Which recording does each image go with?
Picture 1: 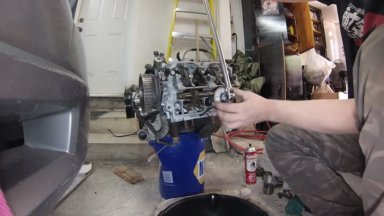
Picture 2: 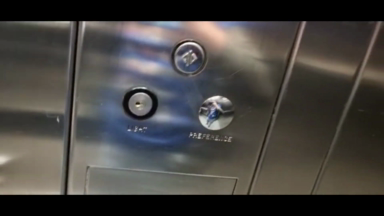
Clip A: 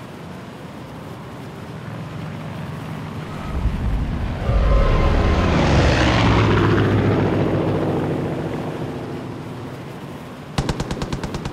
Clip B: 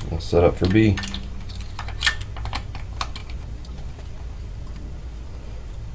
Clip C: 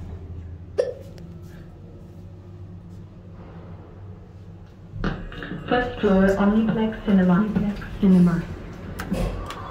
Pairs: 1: B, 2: C